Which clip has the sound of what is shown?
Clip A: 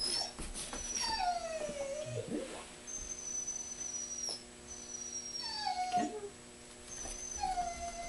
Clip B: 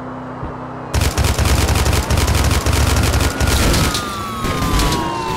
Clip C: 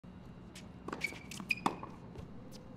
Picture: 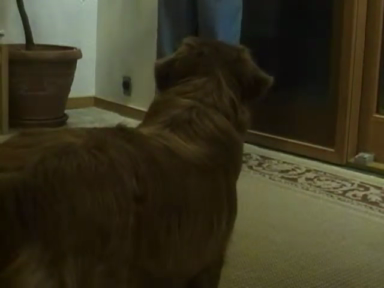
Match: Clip A